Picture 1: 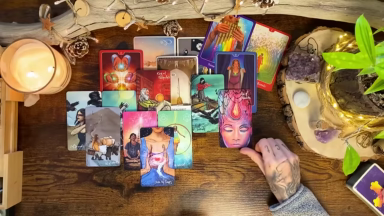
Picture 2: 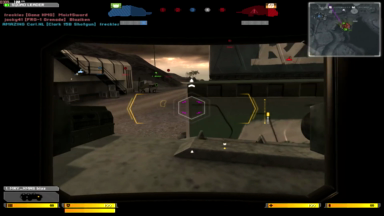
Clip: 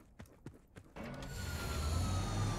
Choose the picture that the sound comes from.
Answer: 2